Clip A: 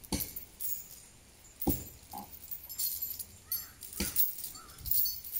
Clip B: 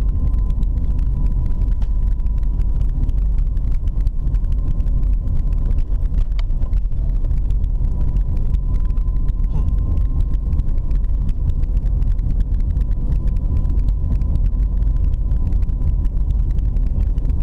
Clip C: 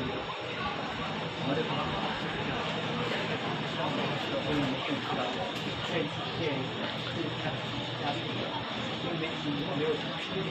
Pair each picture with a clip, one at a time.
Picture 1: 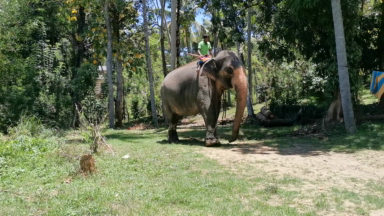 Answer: A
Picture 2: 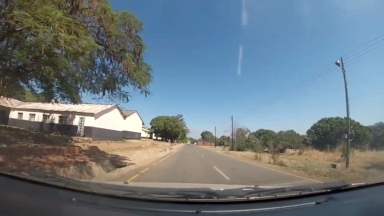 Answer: B